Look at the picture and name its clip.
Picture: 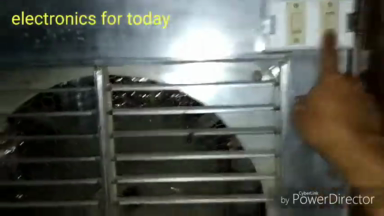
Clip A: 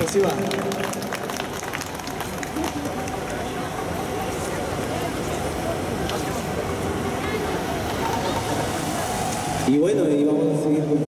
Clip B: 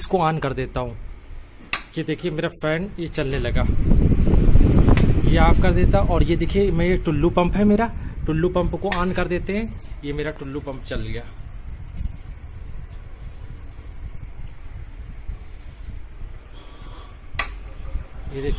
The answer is B